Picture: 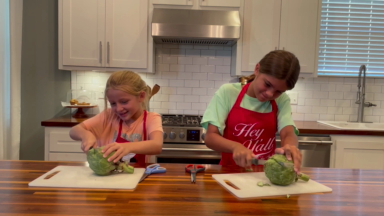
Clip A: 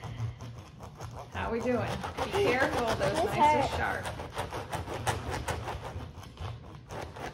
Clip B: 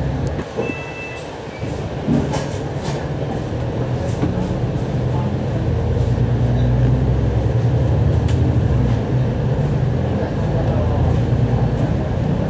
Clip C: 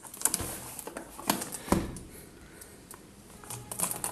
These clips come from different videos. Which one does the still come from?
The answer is A